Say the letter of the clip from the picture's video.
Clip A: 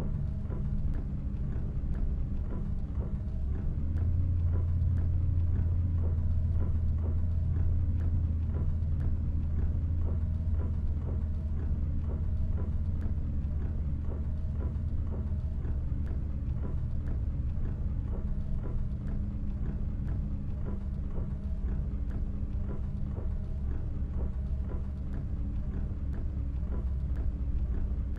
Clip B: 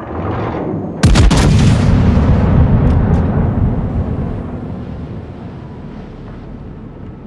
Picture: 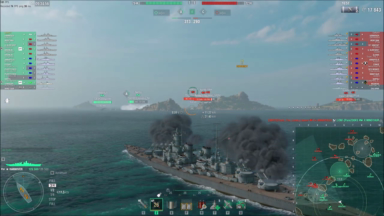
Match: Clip B